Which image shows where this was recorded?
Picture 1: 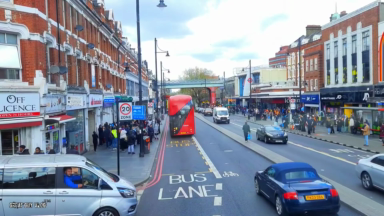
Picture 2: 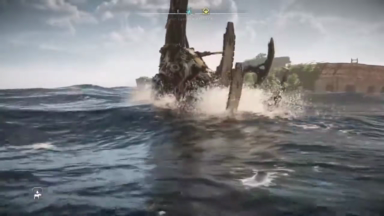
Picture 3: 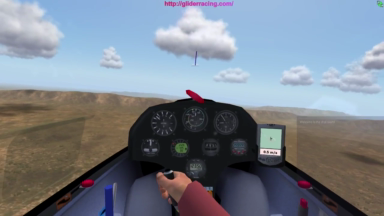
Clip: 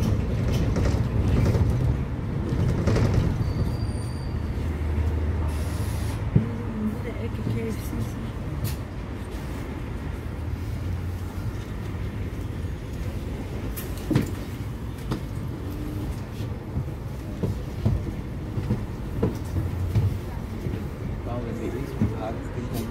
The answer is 1